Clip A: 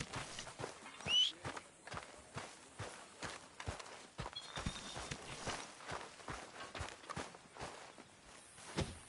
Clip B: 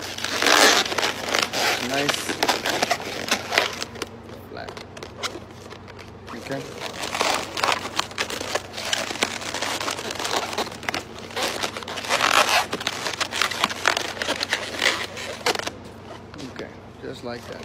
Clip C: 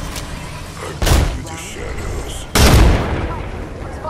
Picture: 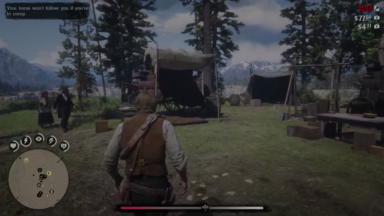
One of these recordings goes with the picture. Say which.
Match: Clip A